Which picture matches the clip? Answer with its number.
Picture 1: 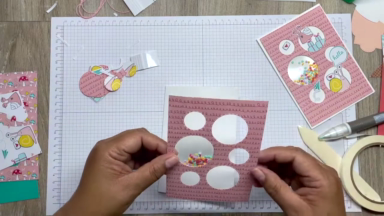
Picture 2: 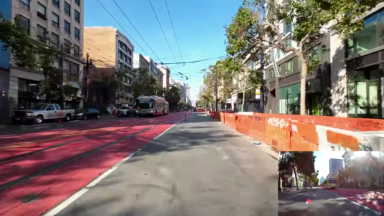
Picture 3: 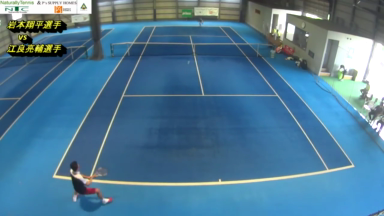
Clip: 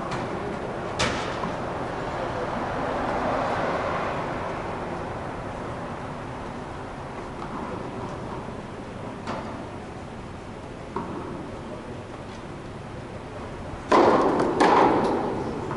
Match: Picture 3